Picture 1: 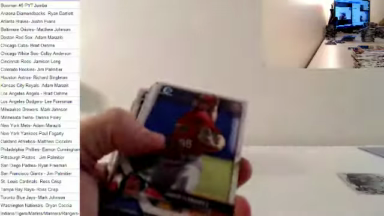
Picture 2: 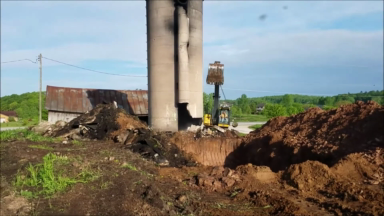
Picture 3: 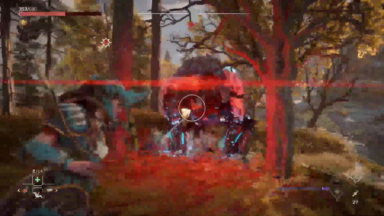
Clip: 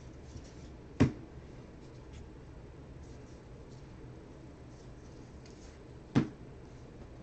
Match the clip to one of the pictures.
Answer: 1